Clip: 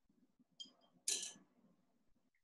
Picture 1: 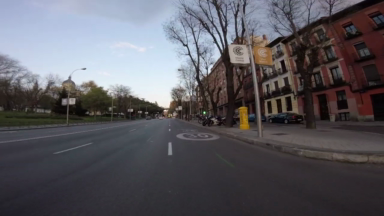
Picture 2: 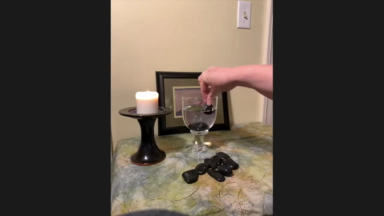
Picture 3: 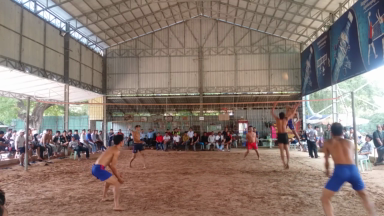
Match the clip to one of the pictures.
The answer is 2